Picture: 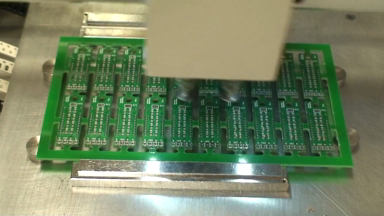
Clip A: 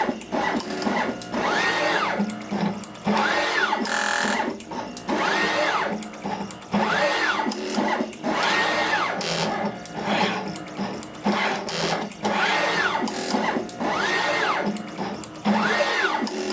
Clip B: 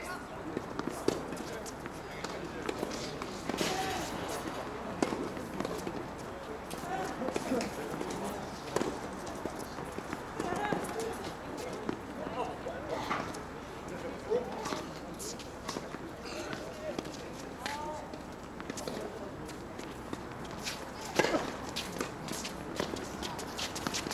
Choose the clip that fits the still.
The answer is A